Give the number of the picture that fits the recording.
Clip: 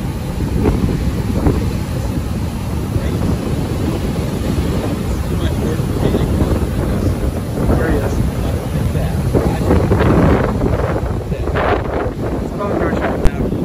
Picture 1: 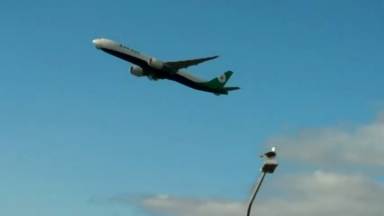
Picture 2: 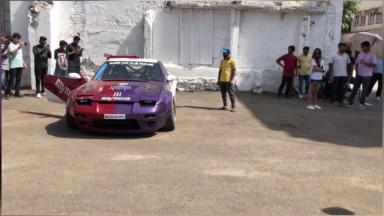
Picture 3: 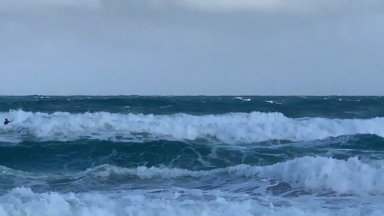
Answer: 3